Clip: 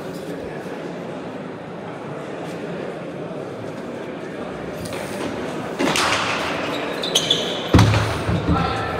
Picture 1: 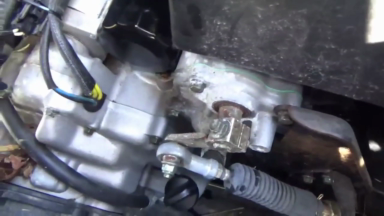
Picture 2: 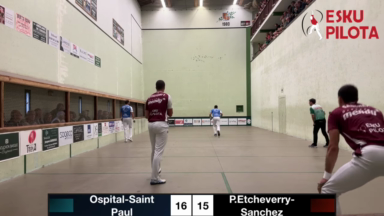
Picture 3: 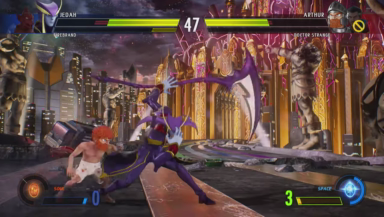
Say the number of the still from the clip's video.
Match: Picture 2